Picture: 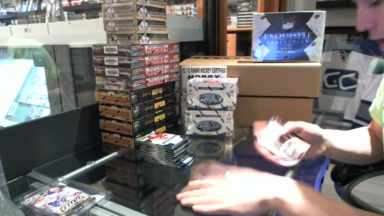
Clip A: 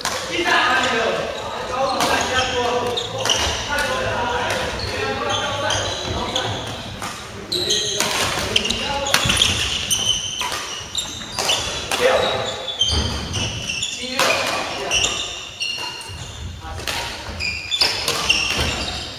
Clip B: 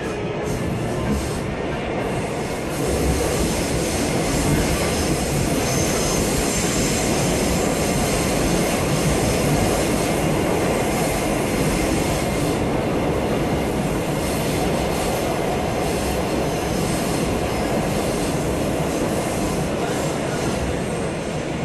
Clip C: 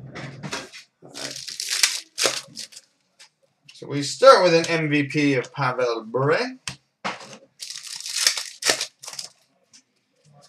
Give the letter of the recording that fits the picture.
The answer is C